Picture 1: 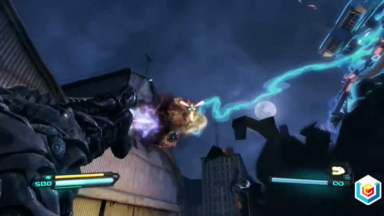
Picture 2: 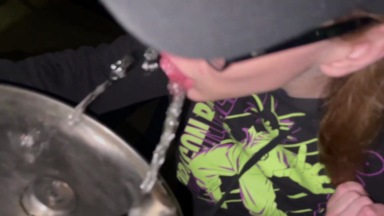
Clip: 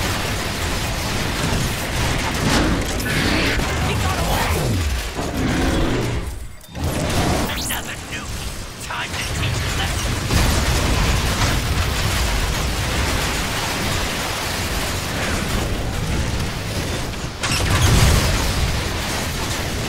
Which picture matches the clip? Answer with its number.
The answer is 1